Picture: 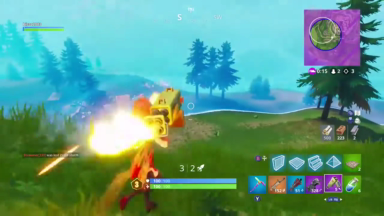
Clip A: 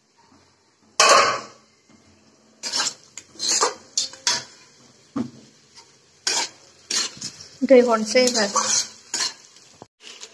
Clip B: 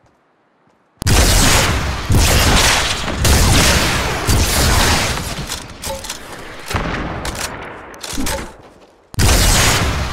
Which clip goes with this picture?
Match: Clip B